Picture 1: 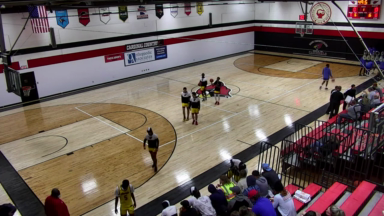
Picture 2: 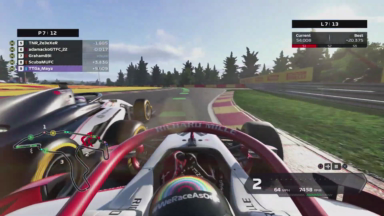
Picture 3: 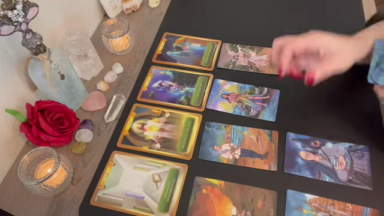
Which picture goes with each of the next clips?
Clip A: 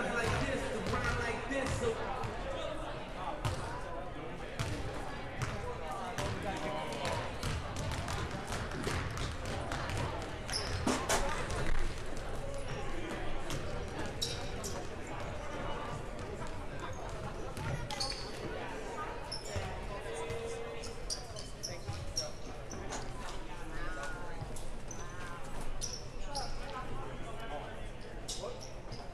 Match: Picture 1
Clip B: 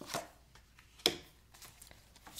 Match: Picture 3